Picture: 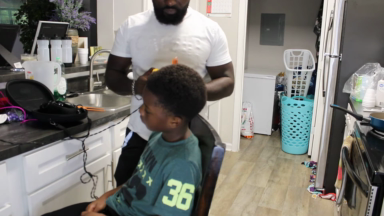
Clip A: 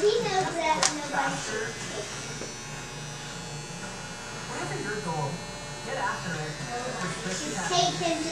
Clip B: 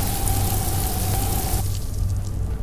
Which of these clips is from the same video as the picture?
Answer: A